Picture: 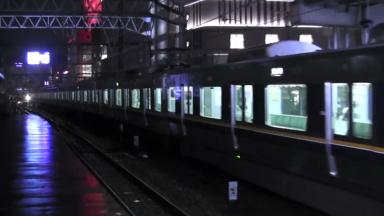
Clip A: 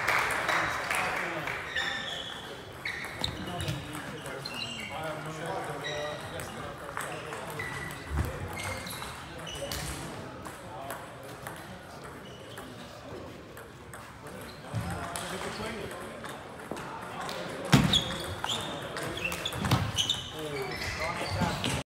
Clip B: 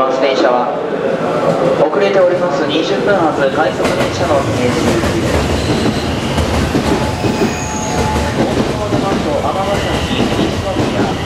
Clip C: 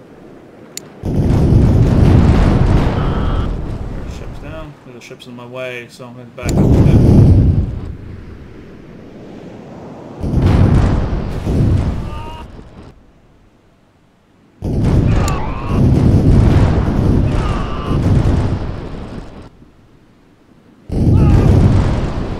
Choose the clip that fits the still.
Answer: B